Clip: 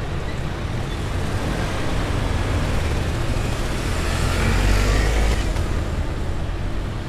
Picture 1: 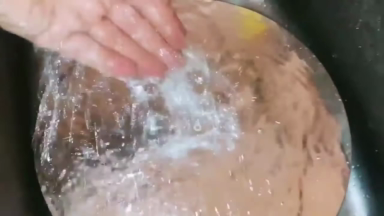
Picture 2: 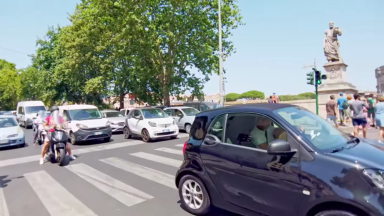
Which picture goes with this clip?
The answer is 2